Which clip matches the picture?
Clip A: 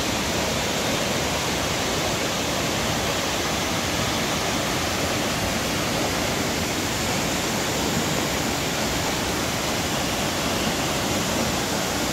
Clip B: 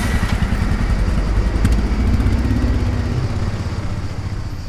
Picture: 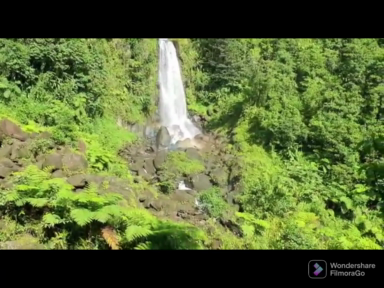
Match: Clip A